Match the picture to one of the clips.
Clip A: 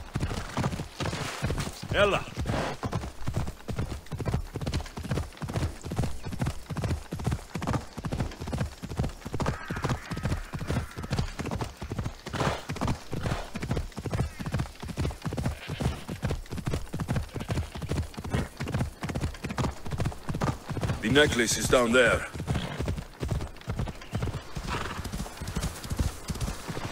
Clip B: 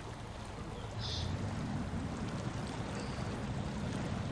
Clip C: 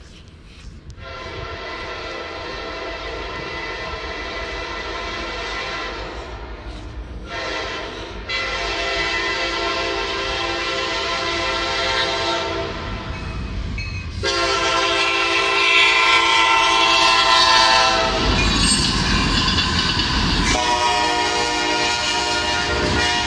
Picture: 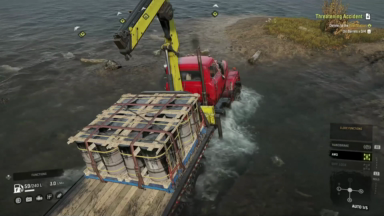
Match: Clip B